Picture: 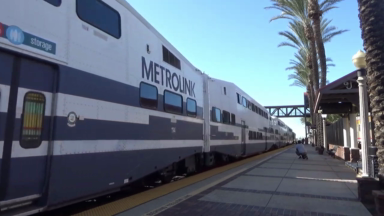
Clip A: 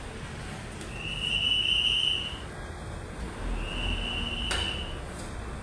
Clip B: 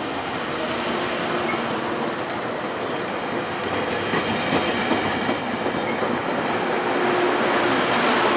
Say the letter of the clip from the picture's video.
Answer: B